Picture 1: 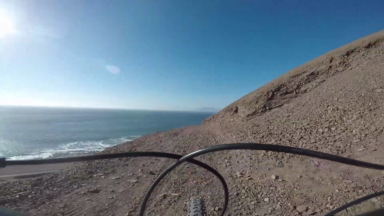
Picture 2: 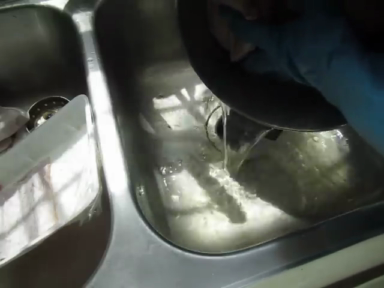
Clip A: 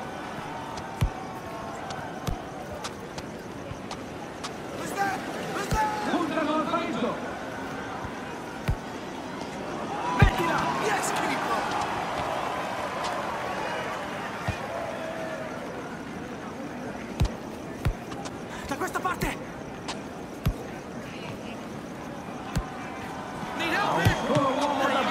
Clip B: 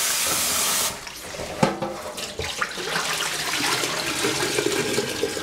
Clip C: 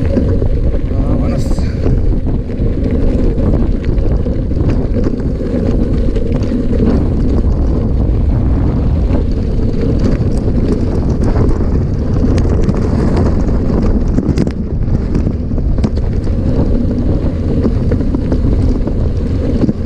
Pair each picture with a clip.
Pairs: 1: C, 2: B